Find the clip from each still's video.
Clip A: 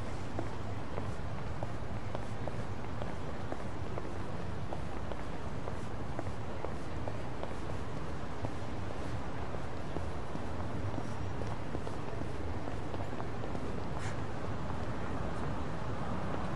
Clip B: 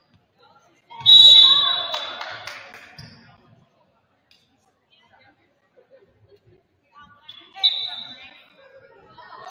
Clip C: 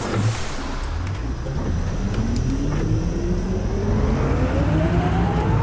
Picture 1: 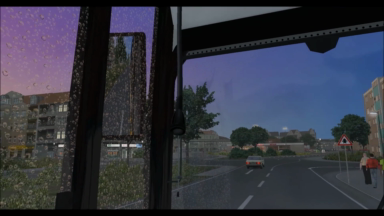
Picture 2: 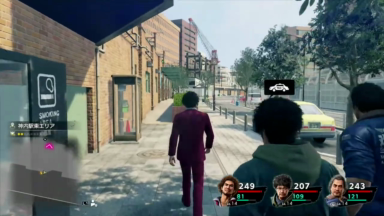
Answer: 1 C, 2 A